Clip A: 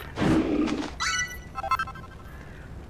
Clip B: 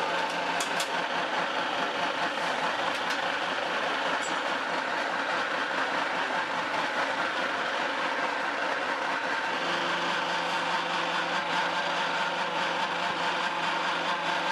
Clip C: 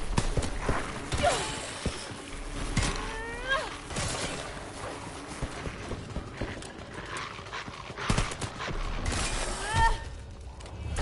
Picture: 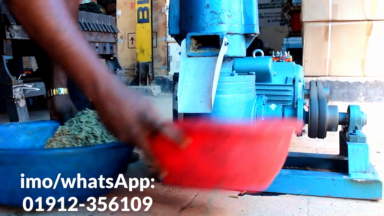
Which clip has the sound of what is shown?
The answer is B